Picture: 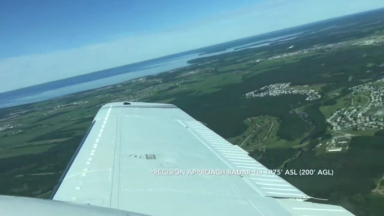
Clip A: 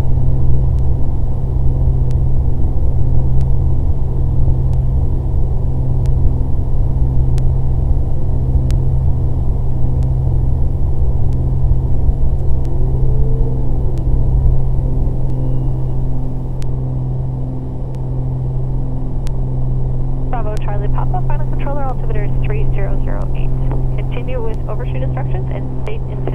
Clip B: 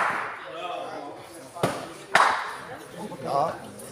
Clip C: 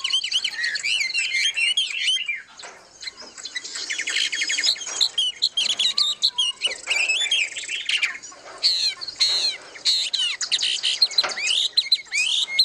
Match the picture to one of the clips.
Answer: A